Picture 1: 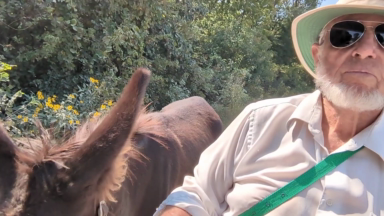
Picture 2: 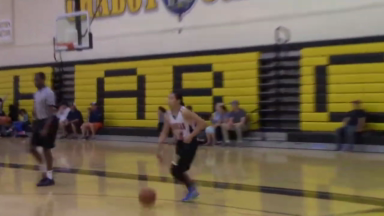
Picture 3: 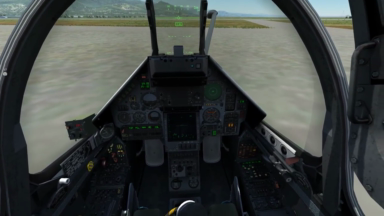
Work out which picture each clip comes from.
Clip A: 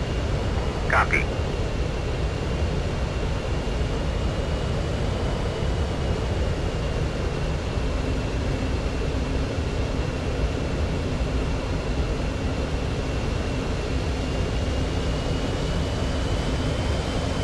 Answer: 3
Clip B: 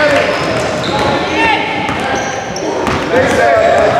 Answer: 2